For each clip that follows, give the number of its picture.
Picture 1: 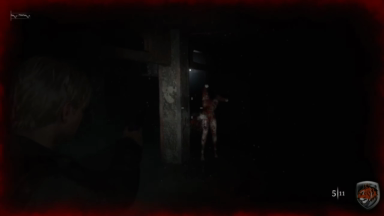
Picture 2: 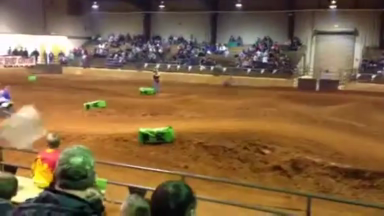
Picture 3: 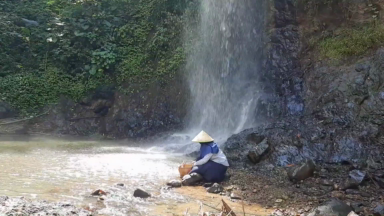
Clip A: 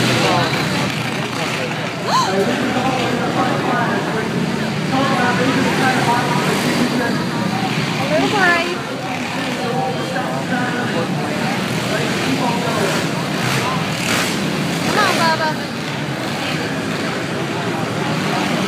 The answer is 2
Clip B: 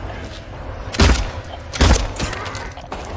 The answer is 1